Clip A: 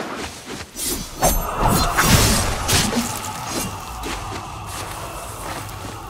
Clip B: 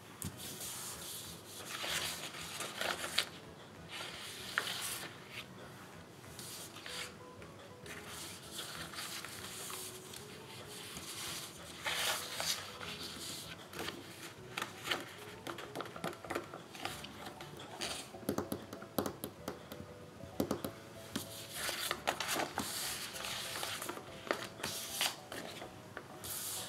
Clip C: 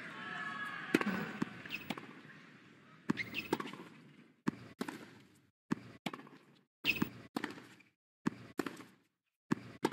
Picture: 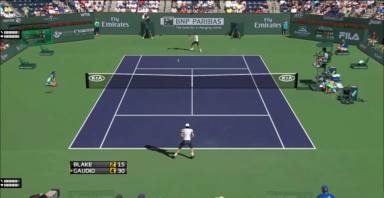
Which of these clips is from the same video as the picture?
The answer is C